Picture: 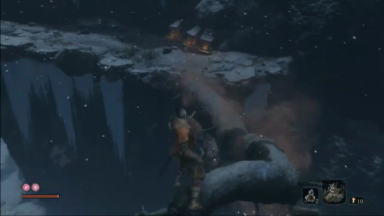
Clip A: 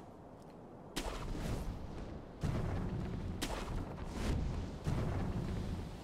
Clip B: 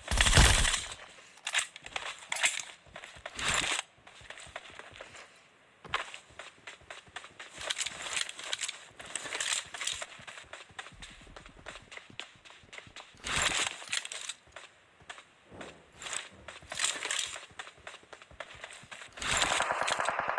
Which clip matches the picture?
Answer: A